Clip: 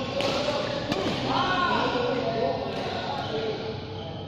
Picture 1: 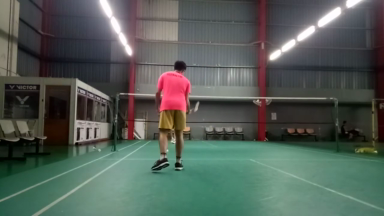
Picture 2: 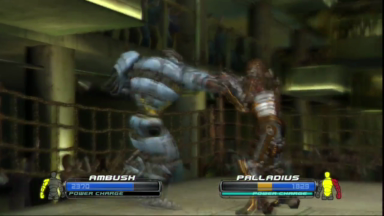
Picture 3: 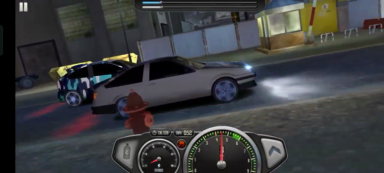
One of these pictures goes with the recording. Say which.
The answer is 1